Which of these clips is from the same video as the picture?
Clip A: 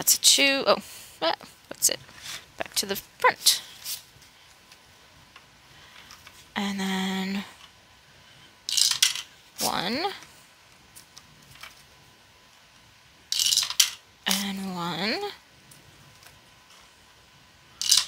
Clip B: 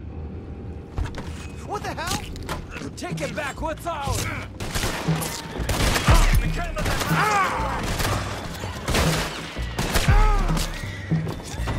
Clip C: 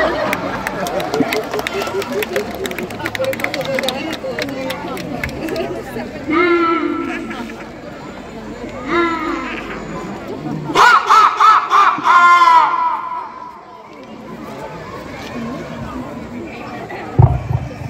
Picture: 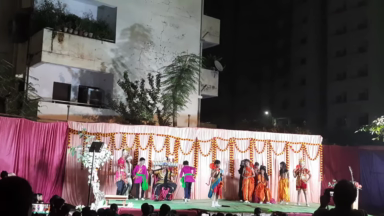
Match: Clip C